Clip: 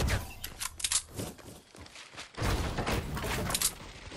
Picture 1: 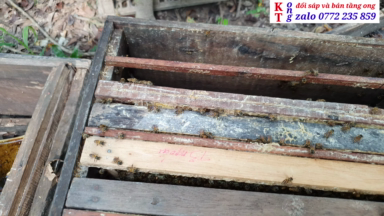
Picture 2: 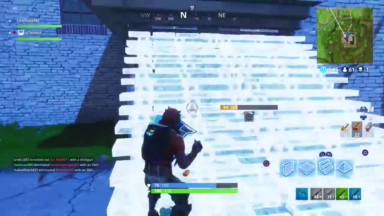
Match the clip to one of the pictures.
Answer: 2